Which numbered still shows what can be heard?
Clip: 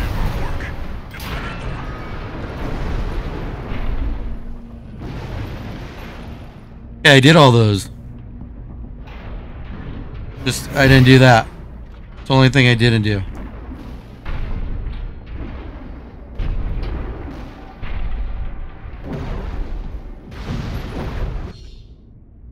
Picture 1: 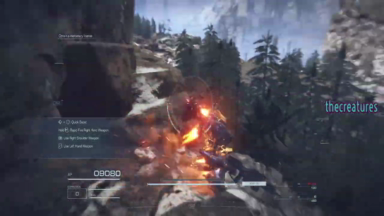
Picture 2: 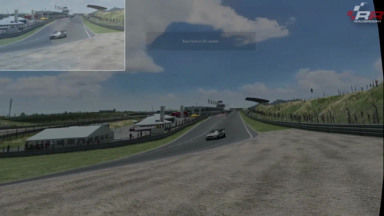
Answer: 1